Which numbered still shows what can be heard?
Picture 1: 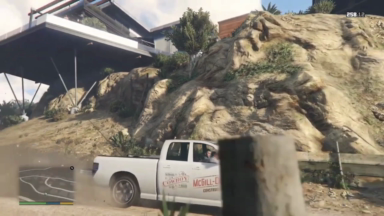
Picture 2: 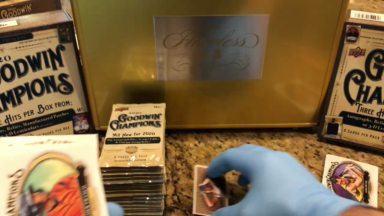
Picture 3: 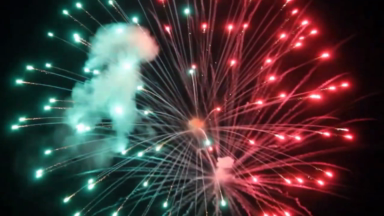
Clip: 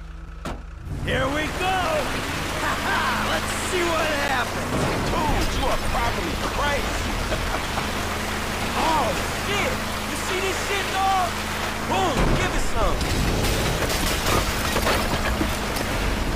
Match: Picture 1